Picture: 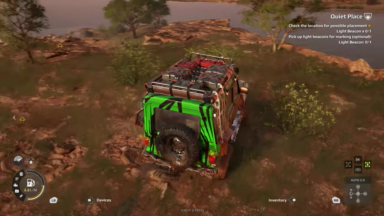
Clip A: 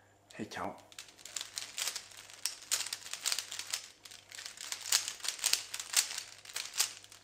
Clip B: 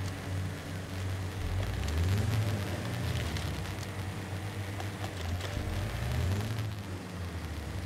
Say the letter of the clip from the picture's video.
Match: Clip B